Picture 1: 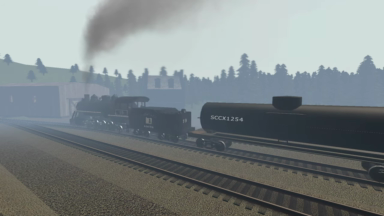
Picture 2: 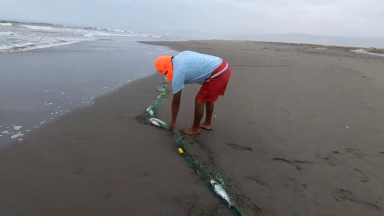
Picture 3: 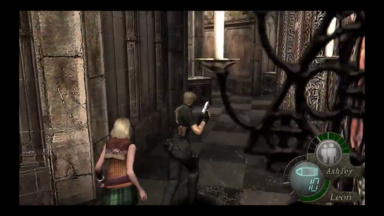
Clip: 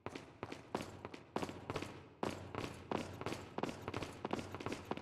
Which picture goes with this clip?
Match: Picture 3